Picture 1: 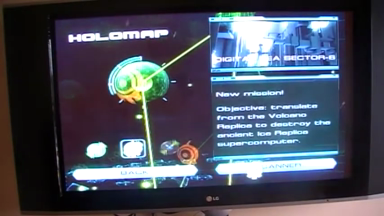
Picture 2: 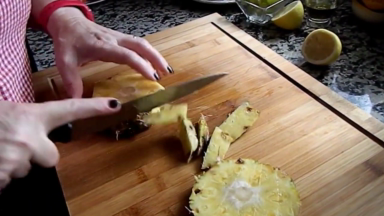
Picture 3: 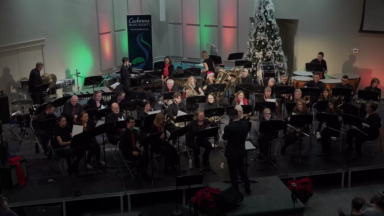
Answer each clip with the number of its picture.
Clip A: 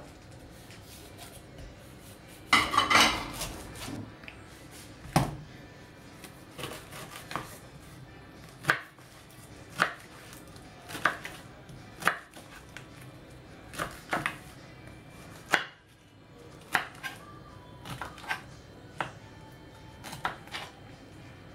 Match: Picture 2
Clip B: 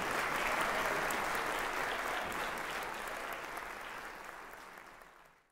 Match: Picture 3